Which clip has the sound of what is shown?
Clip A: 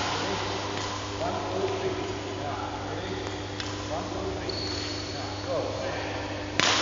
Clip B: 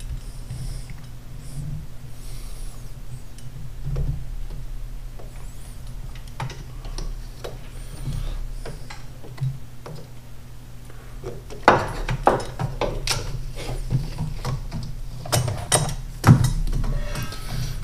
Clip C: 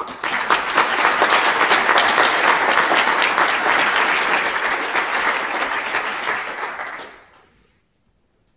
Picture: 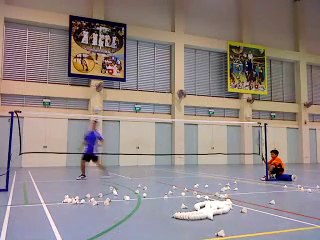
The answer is A